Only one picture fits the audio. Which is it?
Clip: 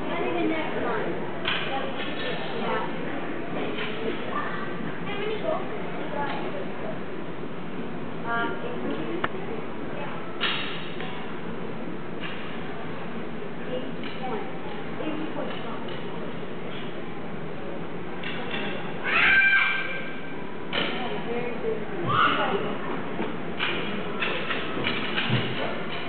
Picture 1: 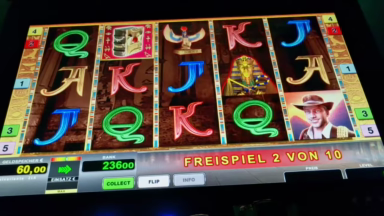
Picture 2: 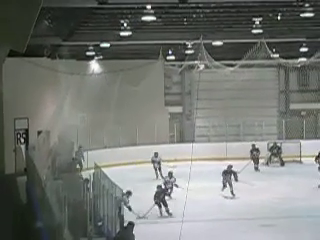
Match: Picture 2